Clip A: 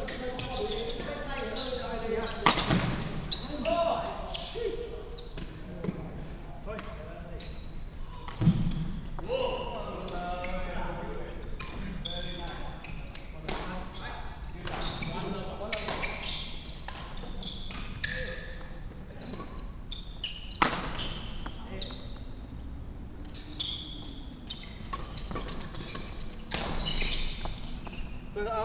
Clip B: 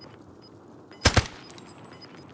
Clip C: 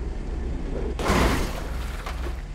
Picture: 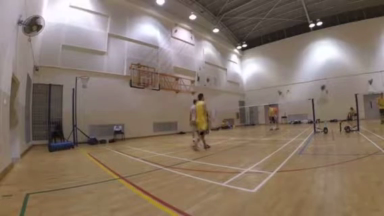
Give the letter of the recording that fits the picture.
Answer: A